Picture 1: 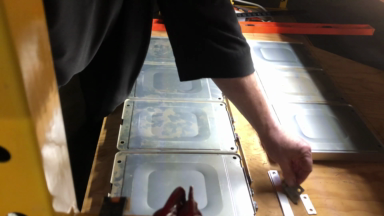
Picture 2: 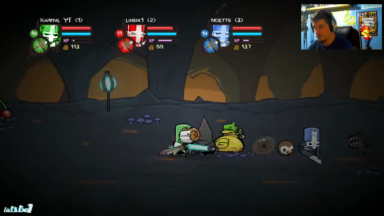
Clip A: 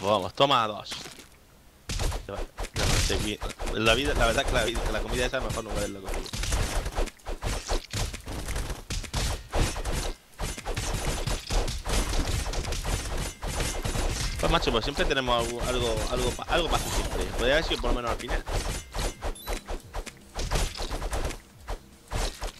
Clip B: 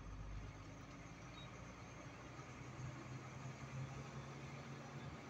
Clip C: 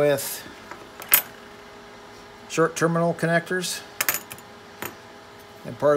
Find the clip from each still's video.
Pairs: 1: C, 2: A